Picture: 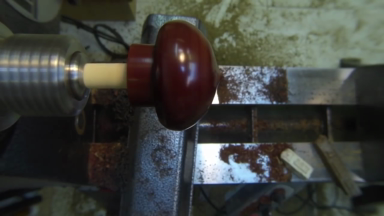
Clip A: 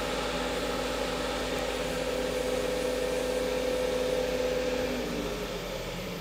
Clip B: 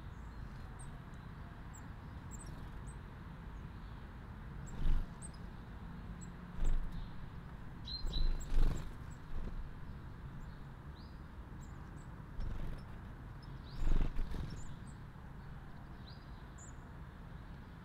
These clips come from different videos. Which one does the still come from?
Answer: A